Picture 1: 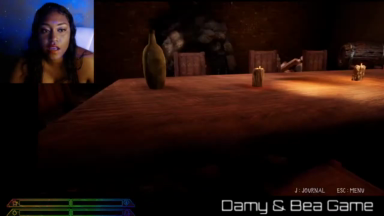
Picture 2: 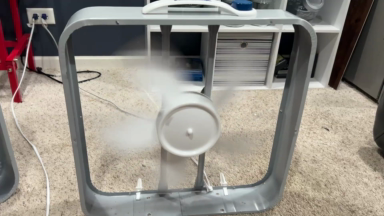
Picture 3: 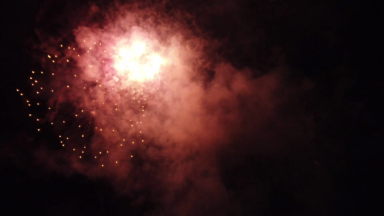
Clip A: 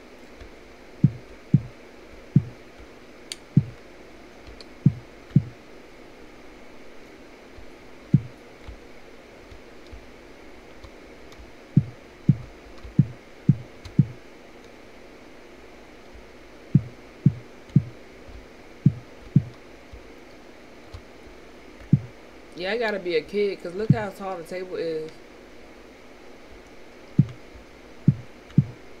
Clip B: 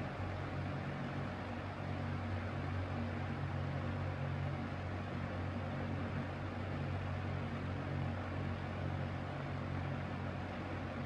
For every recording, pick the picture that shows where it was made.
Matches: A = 1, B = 2